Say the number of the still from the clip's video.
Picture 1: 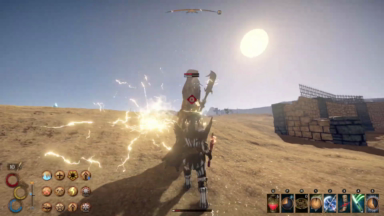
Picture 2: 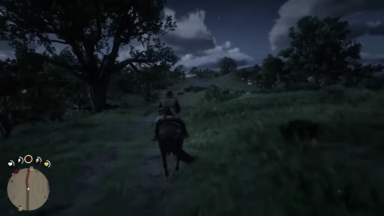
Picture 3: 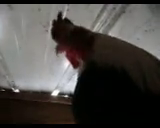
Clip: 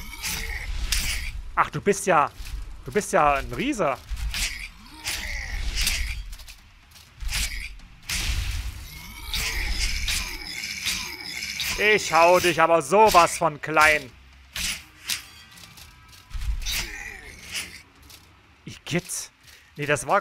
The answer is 1